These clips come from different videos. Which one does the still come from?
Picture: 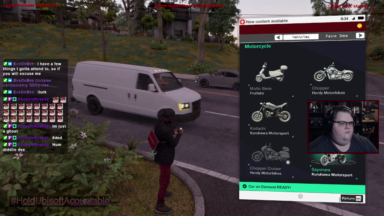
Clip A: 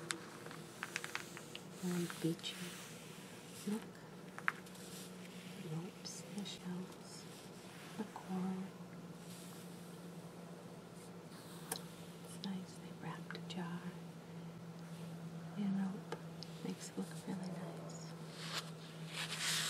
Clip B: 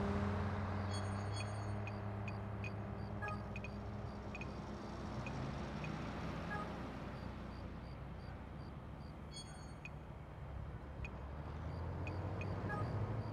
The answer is B